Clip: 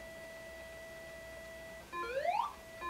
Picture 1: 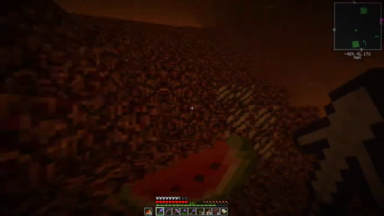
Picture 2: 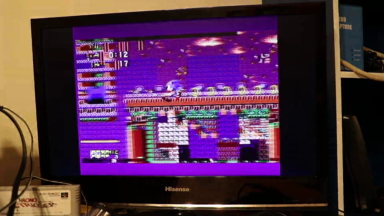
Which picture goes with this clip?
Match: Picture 2